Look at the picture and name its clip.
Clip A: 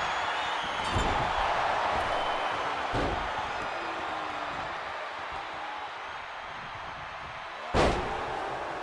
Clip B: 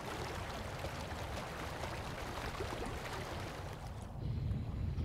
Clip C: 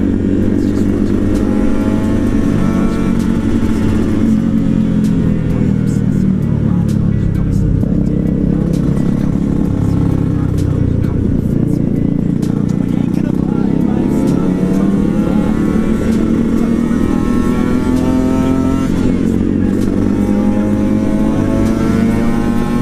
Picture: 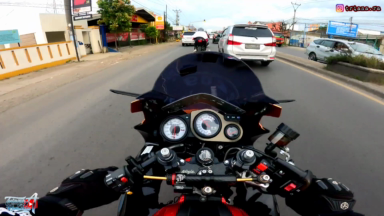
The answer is C